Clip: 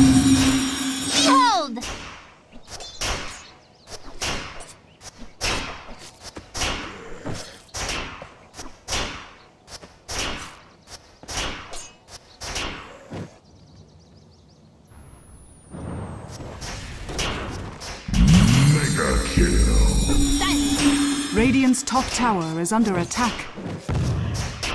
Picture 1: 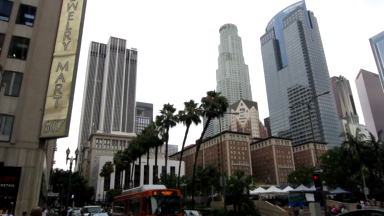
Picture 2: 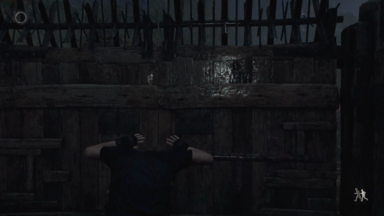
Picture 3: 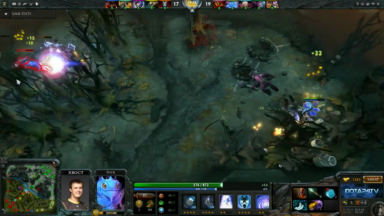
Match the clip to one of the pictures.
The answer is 3